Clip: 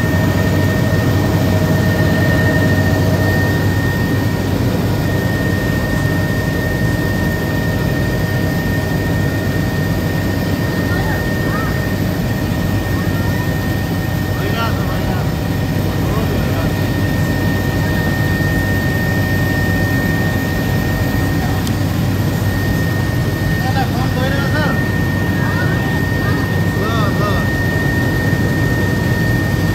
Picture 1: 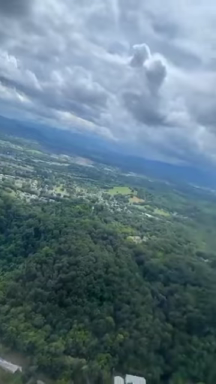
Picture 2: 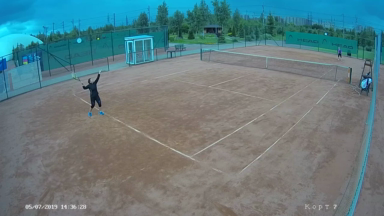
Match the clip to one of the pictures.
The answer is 1